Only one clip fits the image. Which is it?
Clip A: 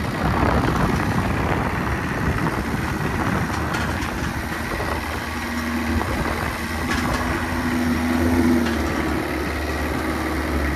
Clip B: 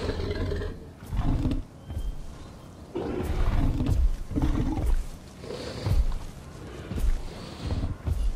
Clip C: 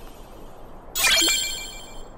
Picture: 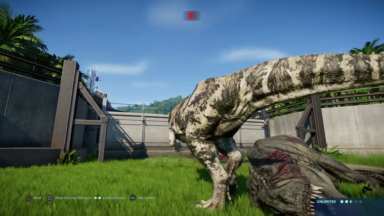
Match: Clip B